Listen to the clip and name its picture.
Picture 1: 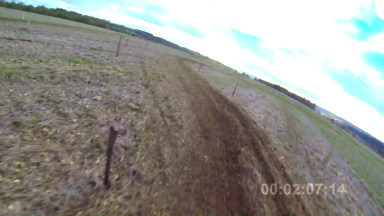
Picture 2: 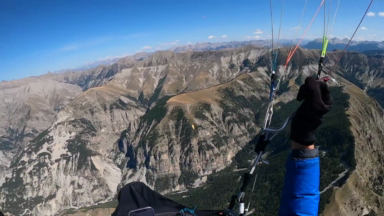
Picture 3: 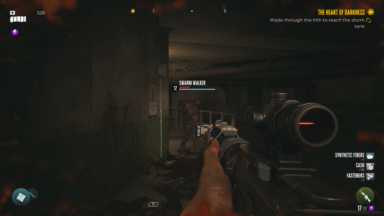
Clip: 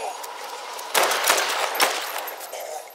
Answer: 3